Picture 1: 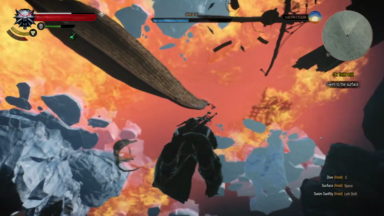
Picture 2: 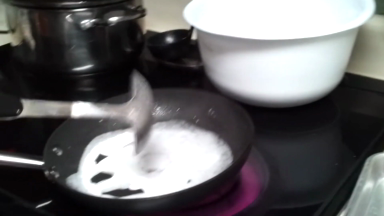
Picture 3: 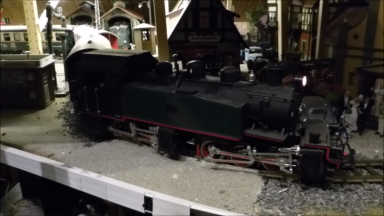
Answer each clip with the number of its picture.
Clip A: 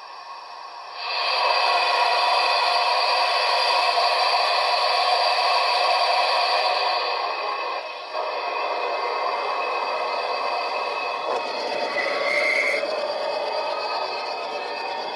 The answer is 3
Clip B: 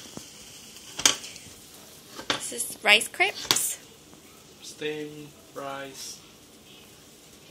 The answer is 2